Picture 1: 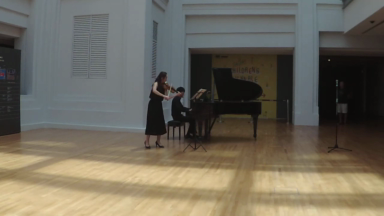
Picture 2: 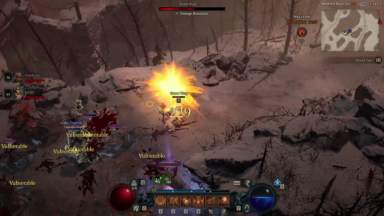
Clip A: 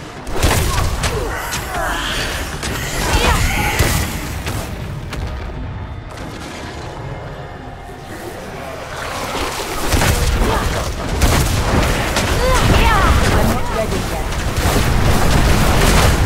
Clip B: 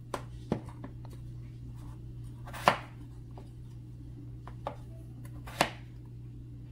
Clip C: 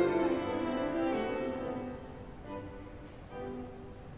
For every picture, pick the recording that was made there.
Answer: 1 C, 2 A